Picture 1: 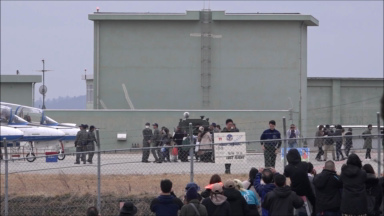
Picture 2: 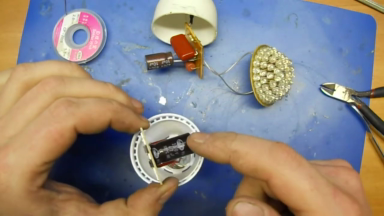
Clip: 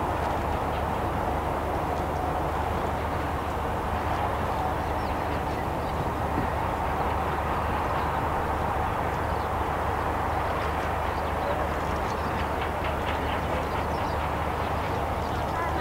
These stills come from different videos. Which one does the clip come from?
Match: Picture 1